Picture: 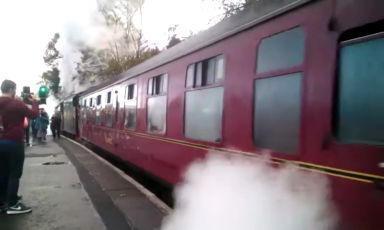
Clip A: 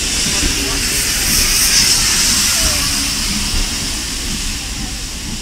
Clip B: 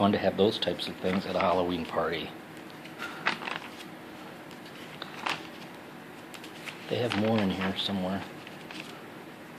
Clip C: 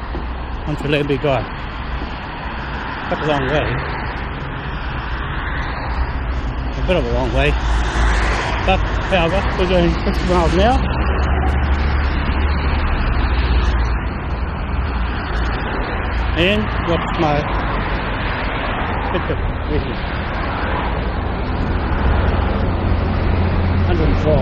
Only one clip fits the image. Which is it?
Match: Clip A